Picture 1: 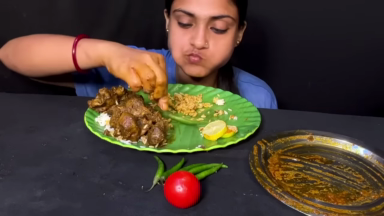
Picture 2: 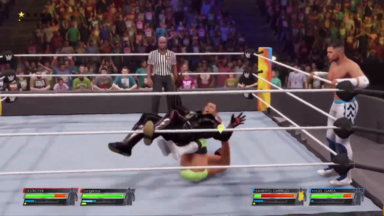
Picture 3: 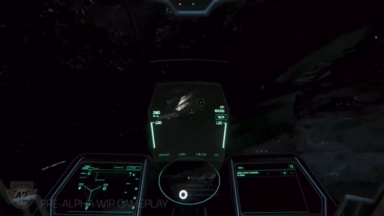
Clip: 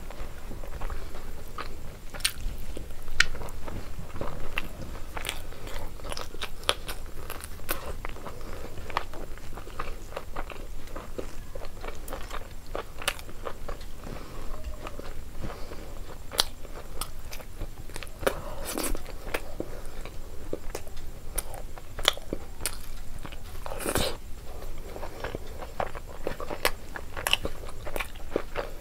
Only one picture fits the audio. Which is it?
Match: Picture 1